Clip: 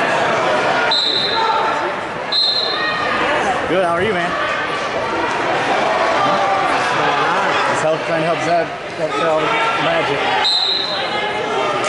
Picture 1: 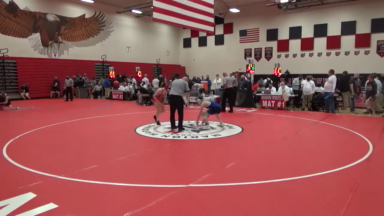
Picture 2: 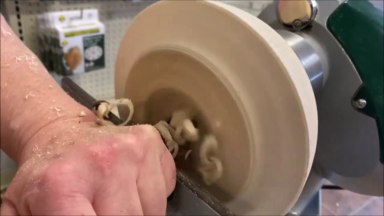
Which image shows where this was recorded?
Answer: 1